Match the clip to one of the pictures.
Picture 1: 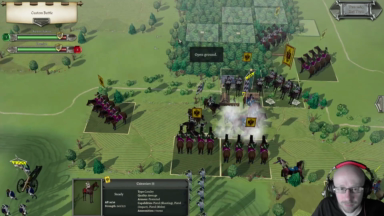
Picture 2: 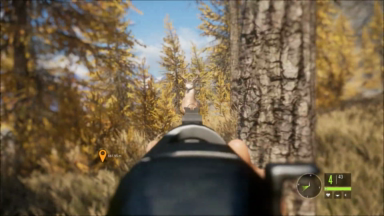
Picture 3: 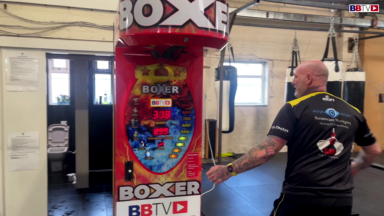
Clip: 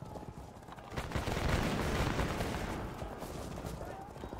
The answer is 1